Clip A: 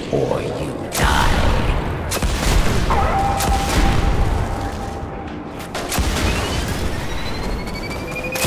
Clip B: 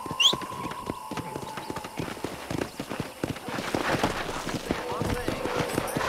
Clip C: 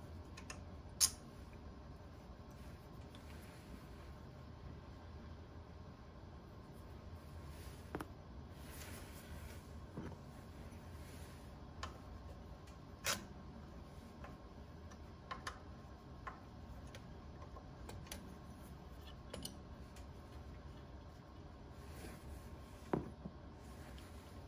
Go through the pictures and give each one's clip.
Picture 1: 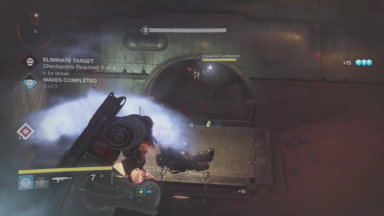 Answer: A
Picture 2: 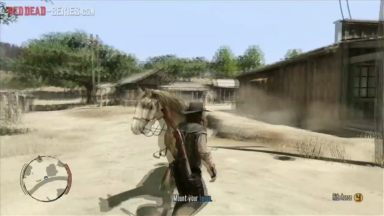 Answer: B